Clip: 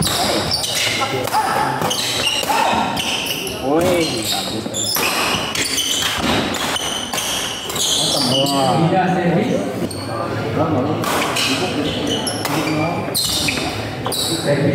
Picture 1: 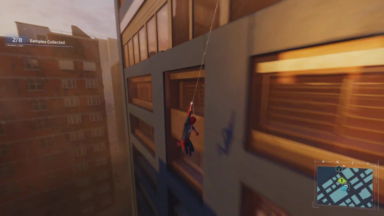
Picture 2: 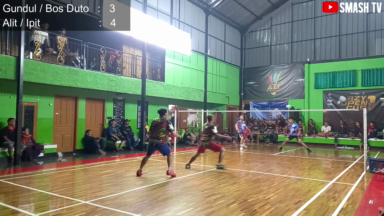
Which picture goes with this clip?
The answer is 2